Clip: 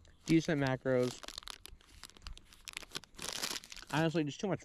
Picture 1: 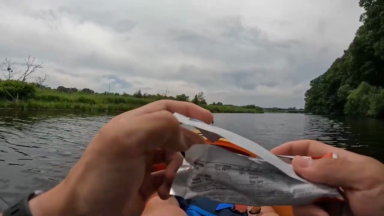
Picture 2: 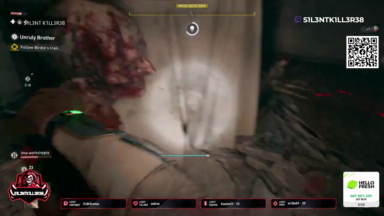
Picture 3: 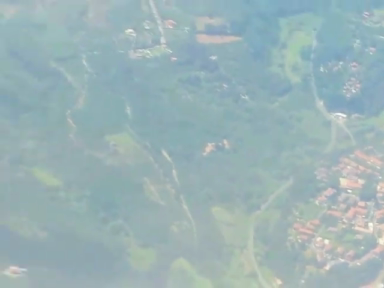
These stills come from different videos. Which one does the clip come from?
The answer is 1